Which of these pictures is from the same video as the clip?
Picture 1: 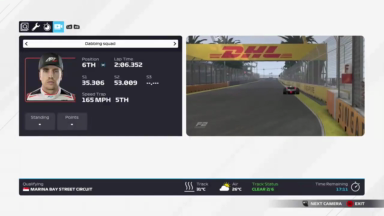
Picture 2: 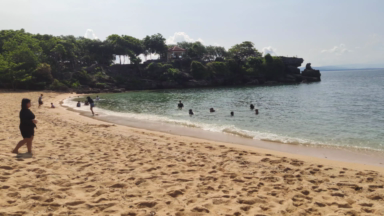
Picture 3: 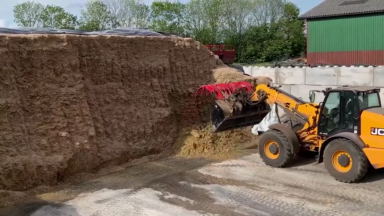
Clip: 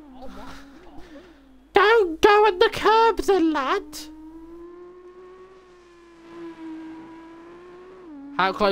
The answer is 1